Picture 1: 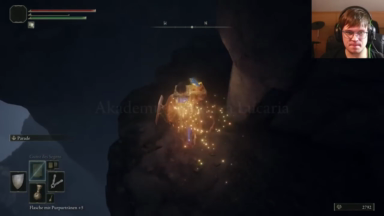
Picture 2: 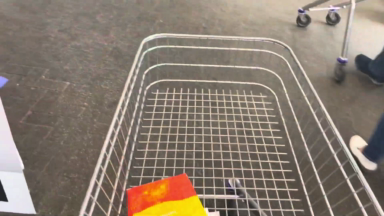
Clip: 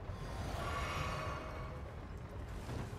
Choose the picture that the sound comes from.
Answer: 1